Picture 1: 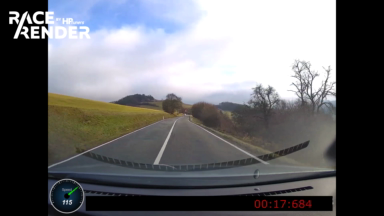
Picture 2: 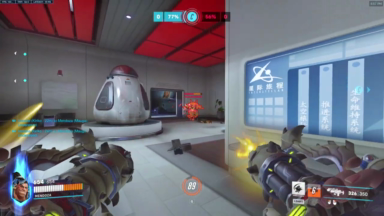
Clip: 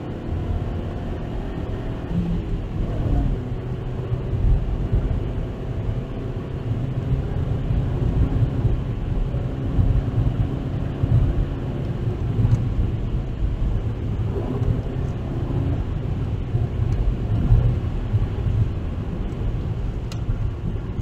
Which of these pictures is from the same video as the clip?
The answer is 1